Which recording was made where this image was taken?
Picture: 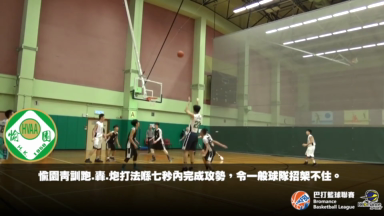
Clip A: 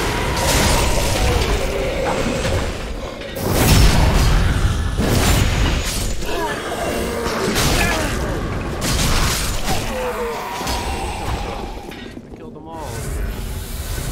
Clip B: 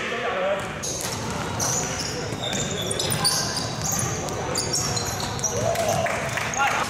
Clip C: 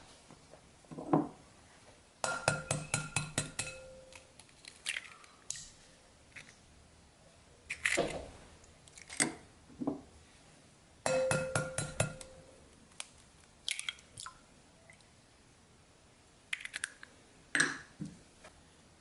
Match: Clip B